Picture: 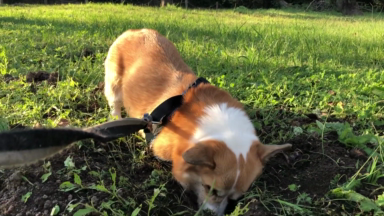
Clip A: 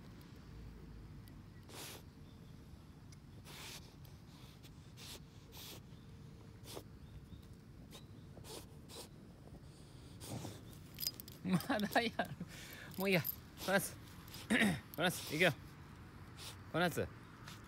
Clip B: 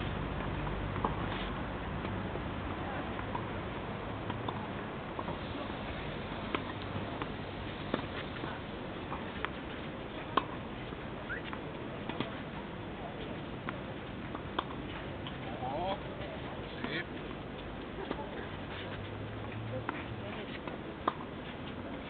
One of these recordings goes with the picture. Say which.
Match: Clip A